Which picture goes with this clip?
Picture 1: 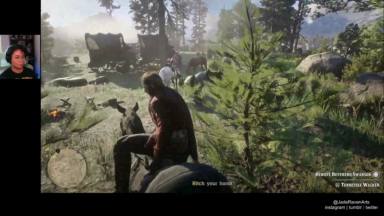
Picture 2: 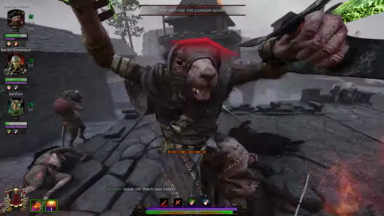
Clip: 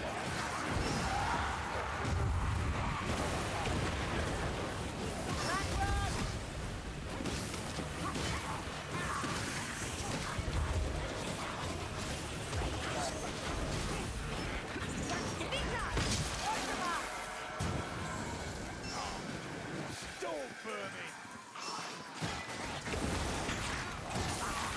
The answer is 2